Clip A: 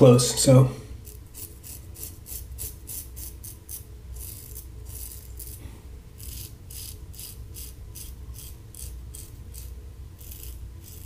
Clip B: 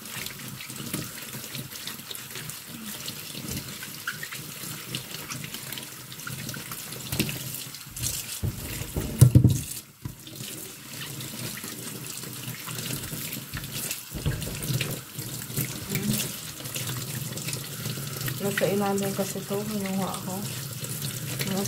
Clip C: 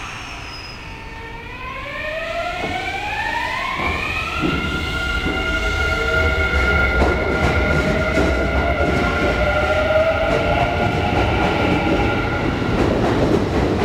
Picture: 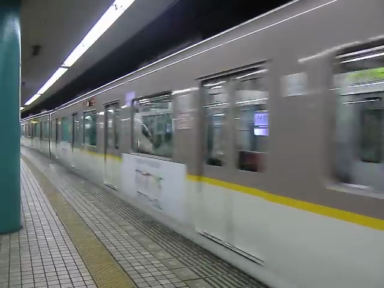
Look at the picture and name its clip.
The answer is C